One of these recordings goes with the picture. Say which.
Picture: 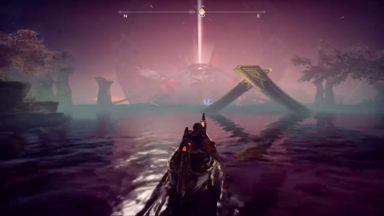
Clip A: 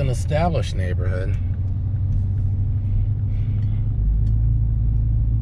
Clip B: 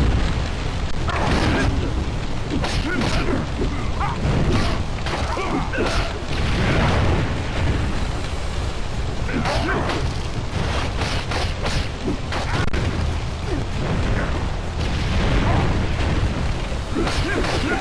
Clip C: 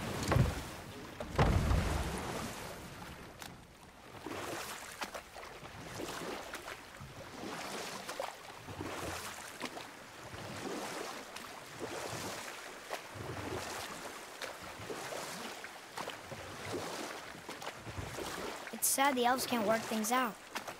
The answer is C